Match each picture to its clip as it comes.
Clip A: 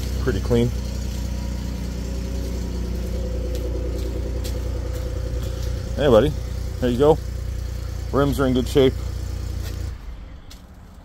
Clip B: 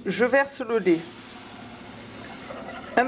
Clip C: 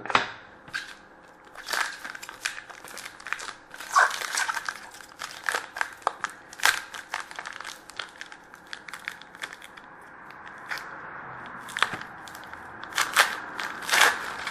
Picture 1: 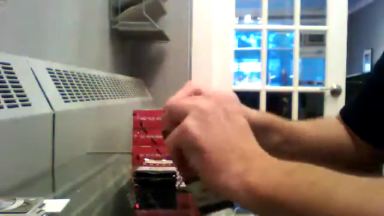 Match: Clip C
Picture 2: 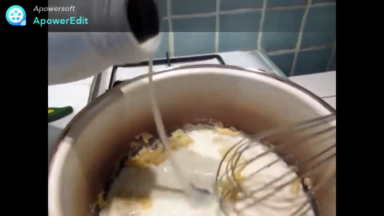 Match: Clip B